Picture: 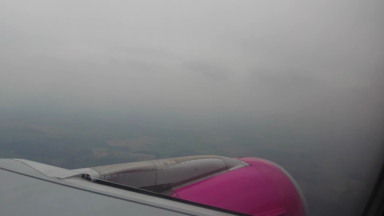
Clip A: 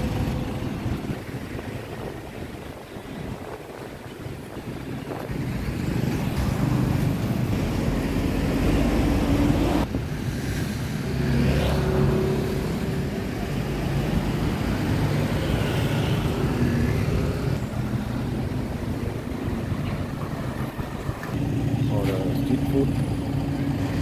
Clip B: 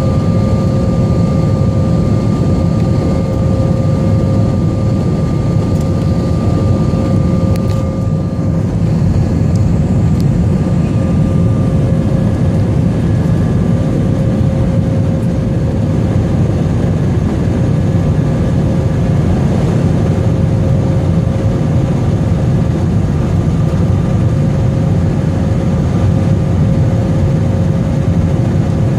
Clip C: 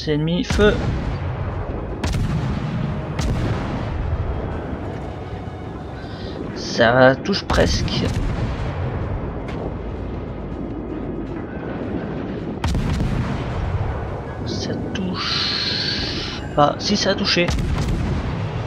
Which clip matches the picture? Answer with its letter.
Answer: B